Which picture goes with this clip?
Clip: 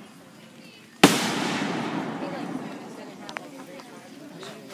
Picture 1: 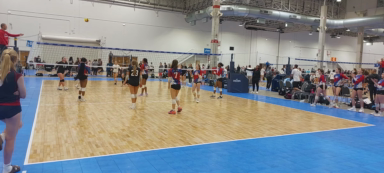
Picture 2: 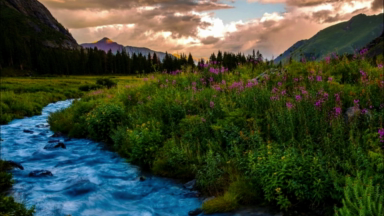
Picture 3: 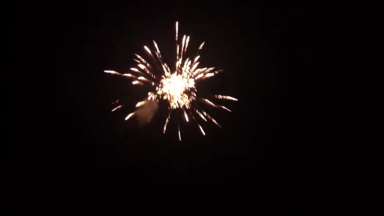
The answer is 3